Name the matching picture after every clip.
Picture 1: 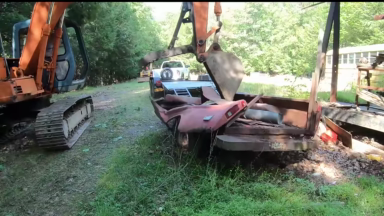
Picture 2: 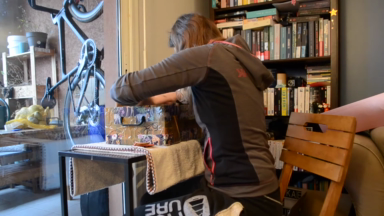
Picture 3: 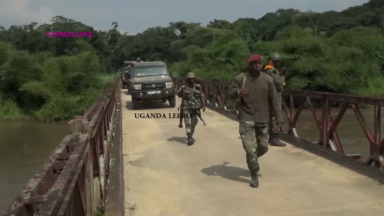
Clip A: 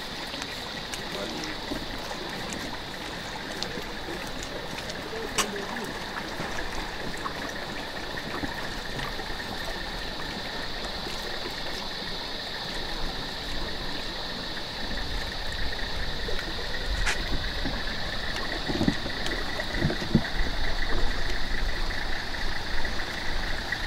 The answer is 3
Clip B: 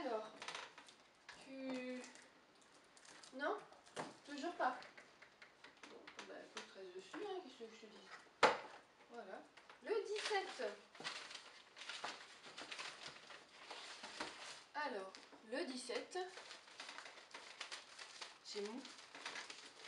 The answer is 2